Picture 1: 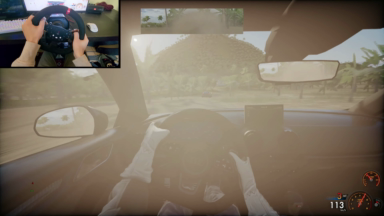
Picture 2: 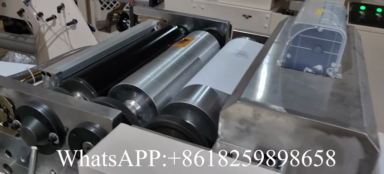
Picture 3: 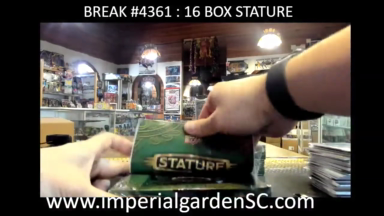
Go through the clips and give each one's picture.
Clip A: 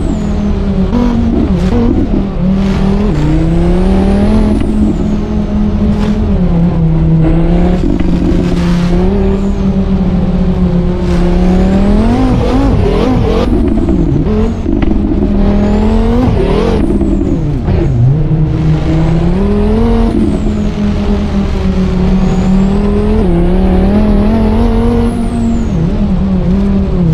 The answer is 1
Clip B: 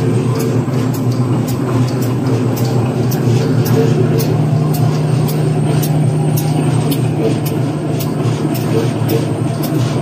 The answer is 2